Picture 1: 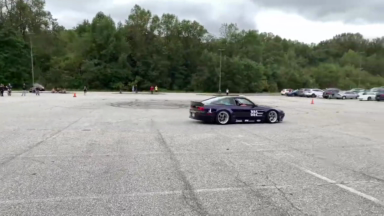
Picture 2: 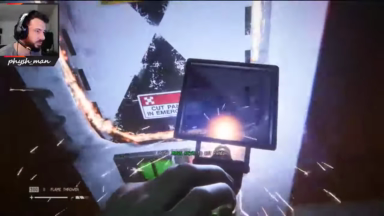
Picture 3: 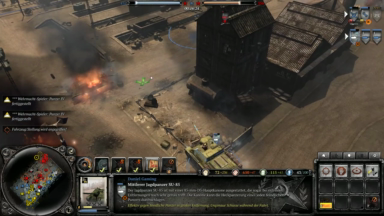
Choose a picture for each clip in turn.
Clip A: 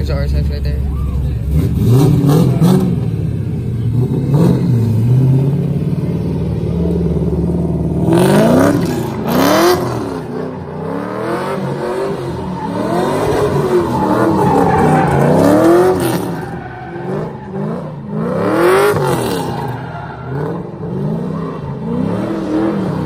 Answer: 1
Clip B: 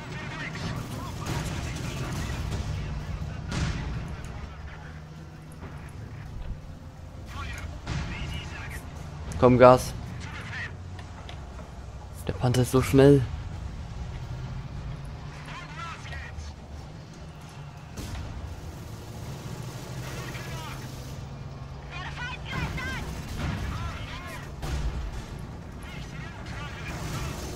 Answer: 3